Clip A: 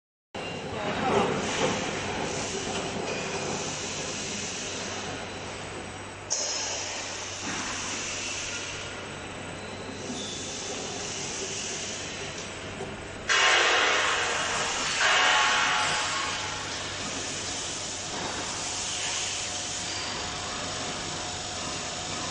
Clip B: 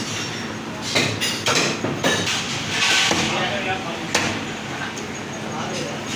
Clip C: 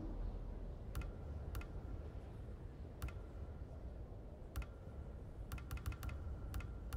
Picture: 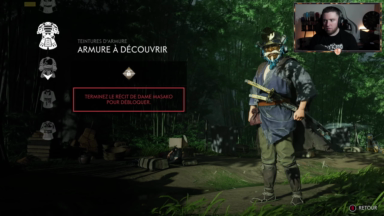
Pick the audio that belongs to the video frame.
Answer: C